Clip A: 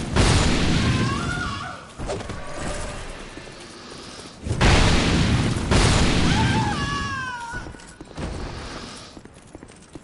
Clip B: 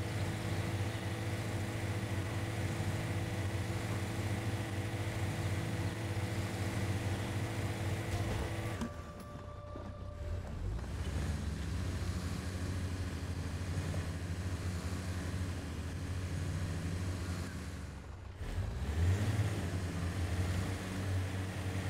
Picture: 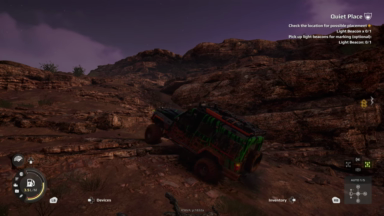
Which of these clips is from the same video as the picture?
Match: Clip B